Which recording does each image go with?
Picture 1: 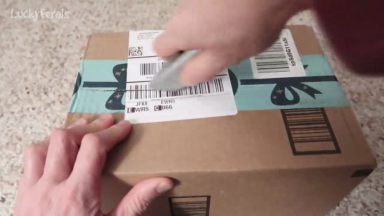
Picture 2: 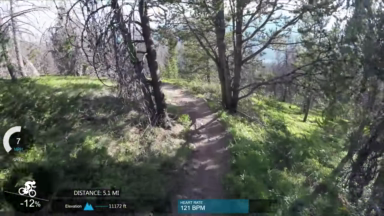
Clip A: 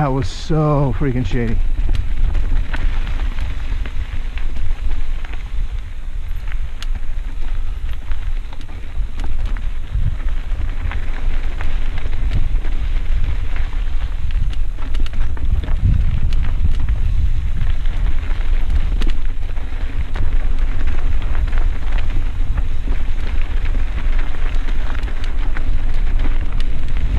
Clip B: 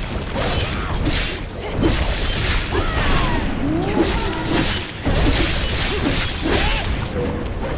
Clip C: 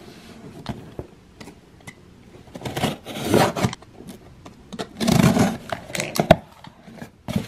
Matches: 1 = C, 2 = A